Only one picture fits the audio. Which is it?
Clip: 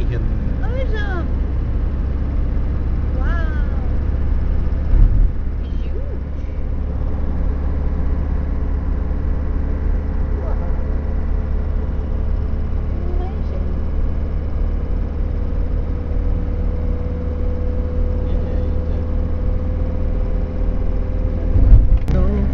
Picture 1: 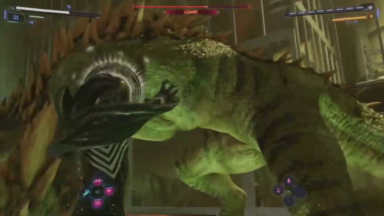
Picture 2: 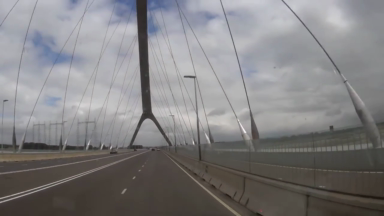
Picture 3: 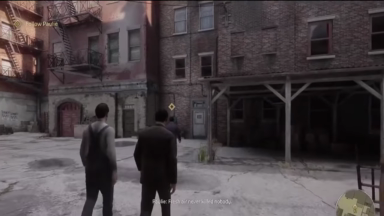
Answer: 2